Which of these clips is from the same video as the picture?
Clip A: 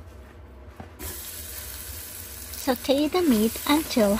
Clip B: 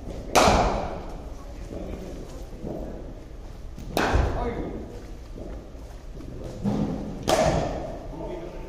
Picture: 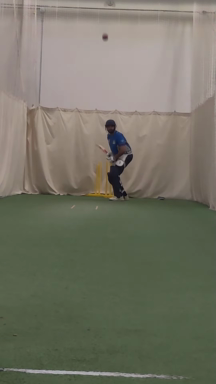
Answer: B